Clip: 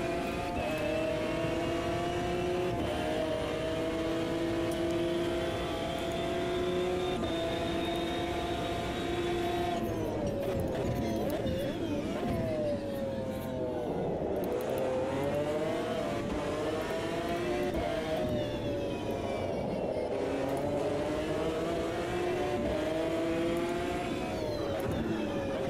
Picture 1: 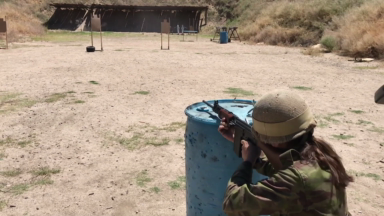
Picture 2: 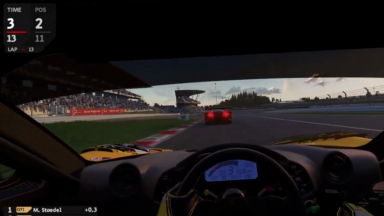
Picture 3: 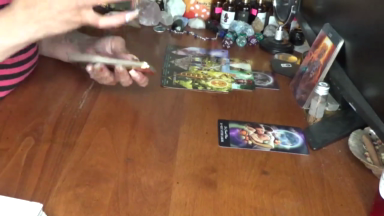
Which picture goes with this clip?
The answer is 2